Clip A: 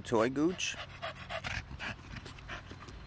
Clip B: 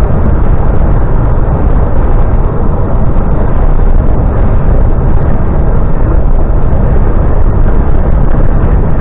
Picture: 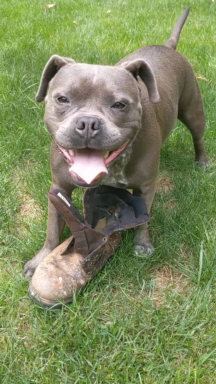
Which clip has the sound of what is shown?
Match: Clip A